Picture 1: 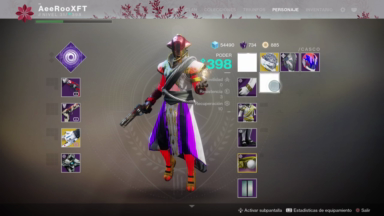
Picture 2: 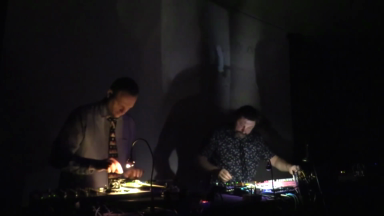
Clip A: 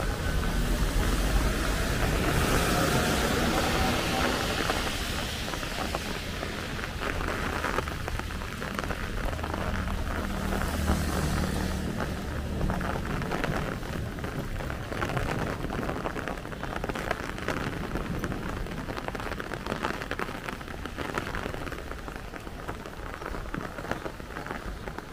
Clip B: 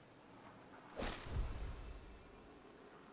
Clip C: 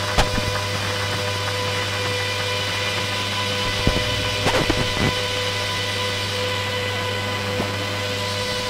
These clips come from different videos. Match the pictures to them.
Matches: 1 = B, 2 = C